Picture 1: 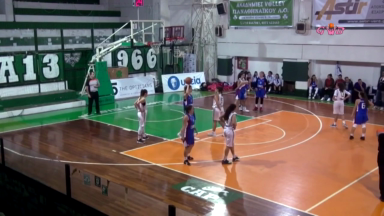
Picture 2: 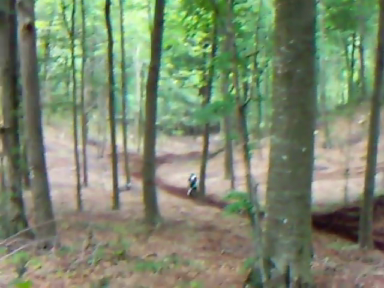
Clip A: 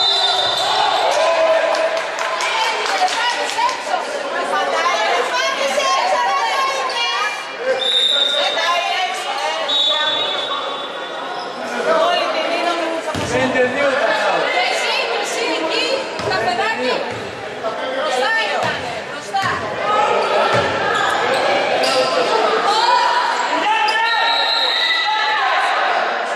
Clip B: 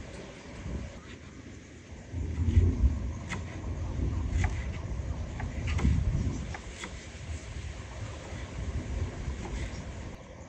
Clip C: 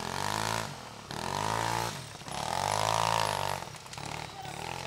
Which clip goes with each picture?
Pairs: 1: A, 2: C